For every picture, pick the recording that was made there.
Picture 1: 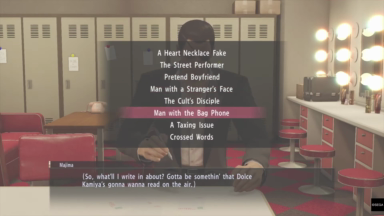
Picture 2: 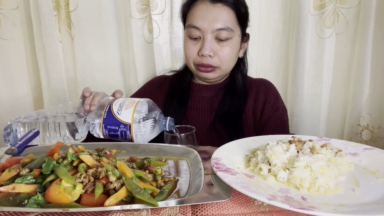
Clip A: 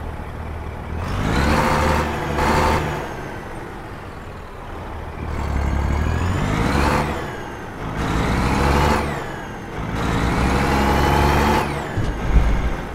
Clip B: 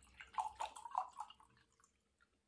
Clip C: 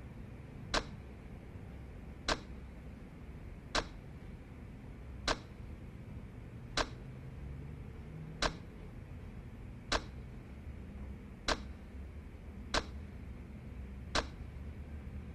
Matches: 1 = C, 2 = B